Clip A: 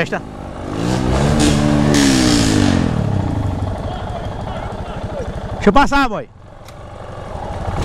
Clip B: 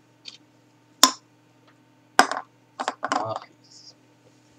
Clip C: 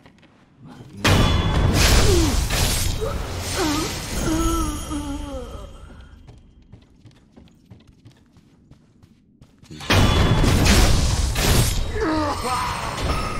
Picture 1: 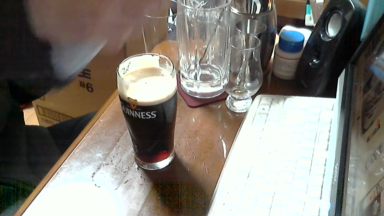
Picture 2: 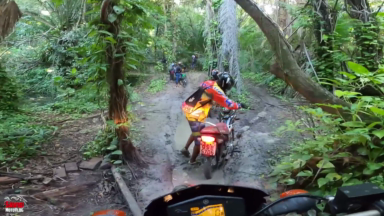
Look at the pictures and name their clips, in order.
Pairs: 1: B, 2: A